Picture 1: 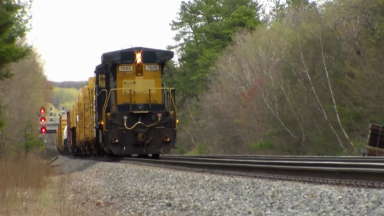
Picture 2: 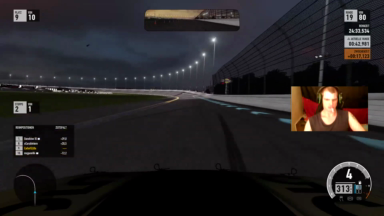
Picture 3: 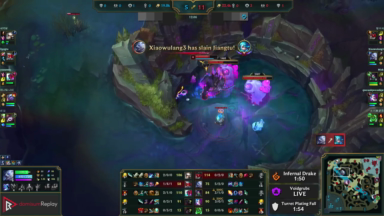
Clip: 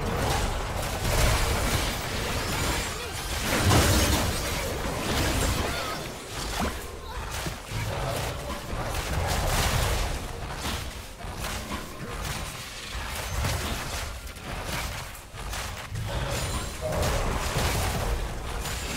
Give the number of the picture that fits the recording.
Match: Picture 3